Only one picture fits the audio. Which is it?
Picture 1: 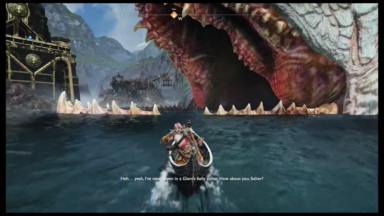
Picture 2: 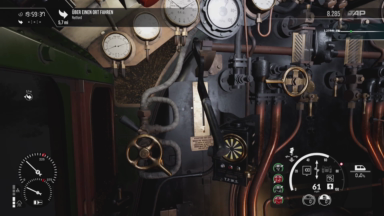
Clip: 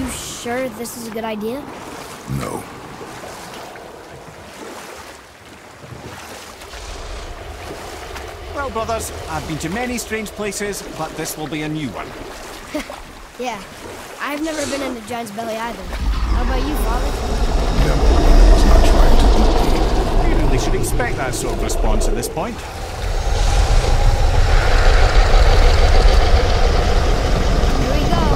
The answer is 1